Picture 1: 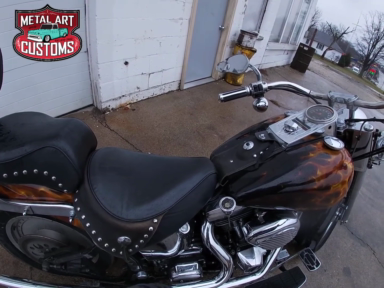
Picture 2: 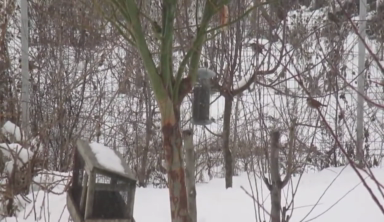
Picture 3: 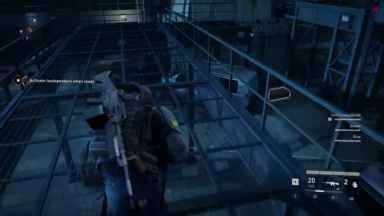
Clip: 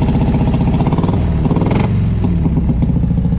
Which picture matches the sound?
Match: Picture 1